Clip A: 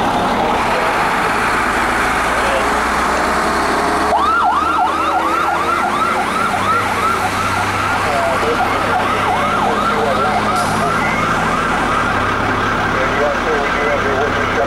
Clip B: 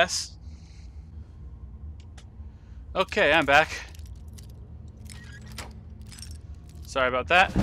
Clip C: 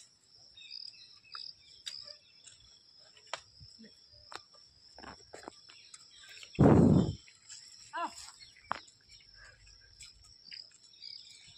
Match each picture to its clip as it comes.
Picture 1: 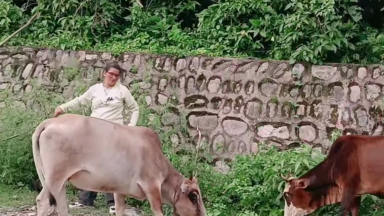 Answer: C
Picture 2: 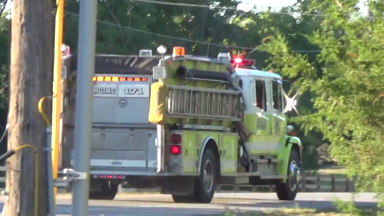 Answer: A